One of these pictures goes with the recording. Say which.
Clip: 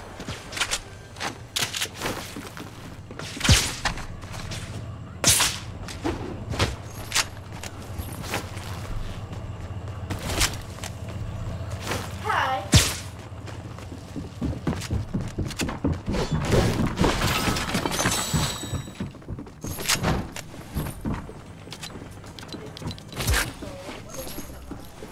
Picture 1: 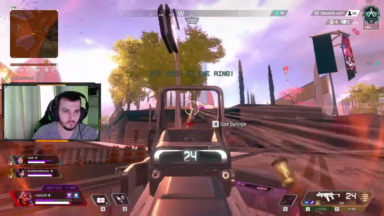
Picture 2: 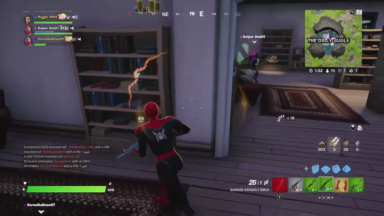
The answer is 2